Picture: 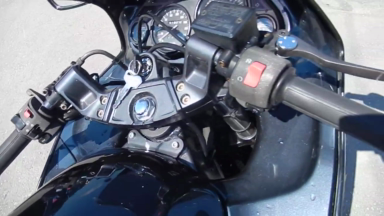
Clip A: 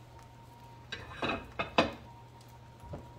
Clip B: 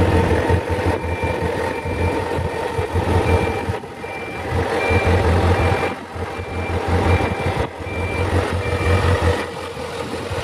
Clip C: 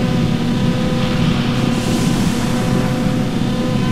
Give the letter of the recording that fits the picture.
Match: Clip B